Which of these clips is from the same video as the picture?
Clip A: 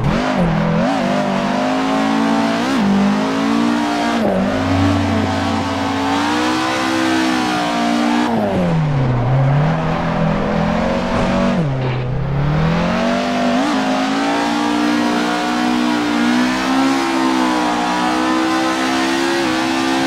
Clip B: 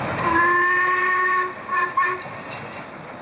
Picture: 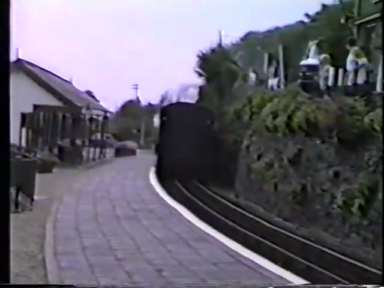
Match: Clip B